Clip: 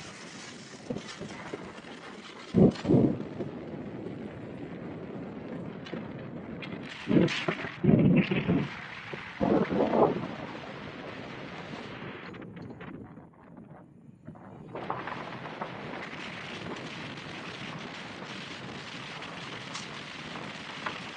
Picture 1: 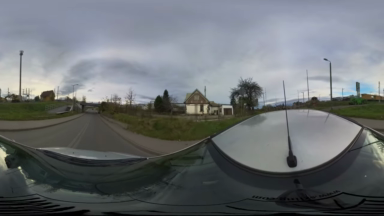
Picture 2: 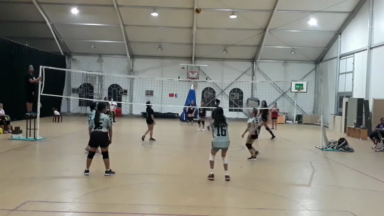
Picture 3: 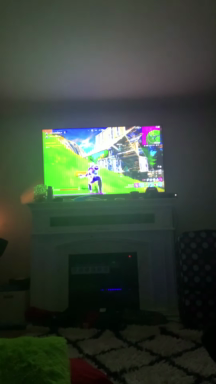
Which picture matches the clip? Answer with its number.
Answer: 1